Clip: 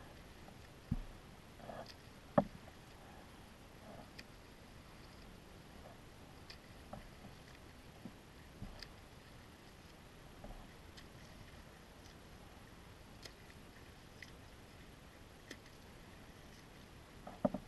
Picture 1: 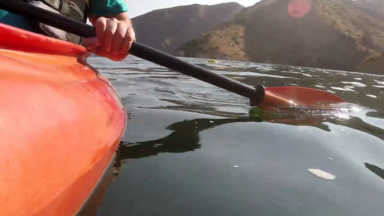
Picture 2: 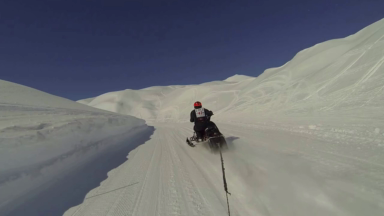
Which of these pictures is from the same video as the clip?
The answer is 1